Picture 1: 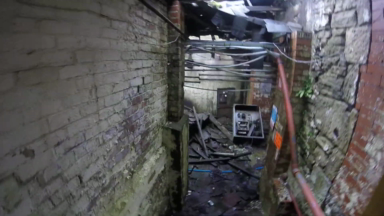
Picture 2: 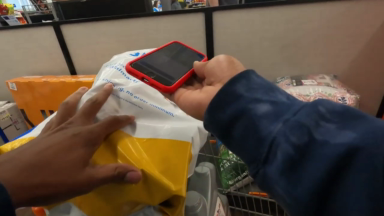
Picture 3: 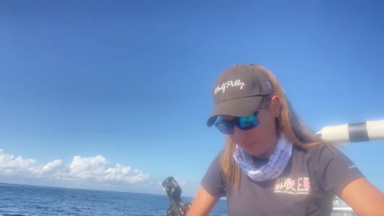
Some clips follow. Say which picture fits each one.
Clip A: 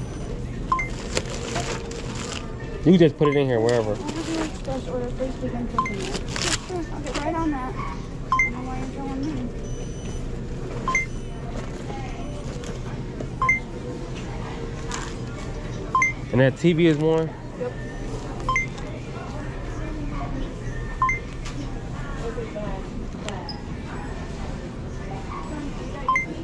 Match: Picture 2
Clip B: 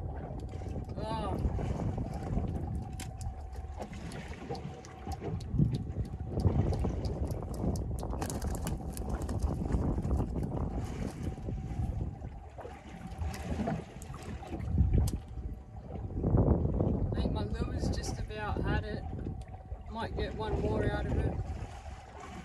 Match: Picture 3